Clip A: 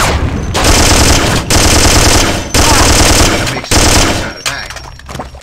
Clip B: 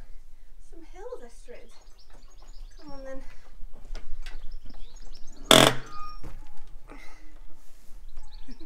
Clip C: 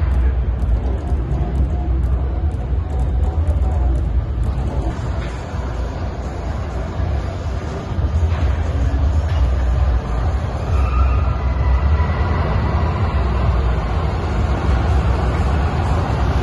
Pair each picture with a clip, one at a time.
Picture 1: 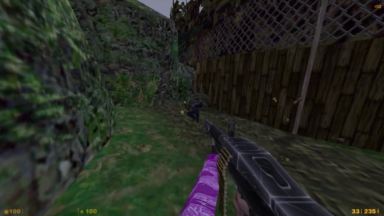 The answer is A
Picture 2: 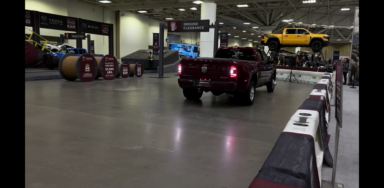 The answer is C